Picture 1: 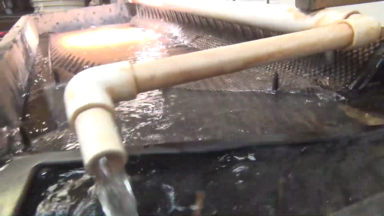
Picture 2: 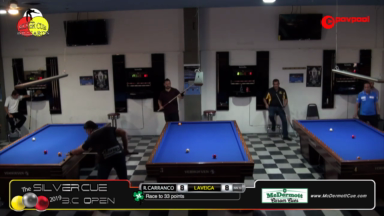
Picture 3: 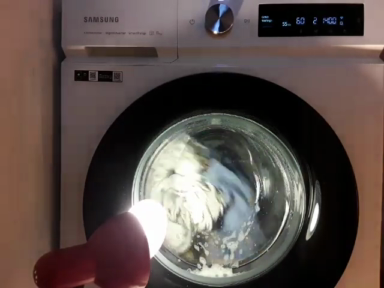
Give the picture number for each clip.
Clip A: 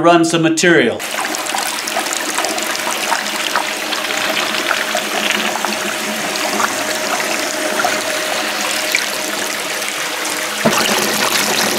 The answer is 1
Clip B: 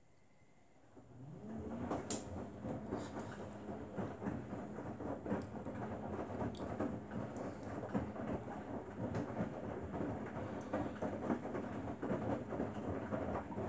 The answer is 3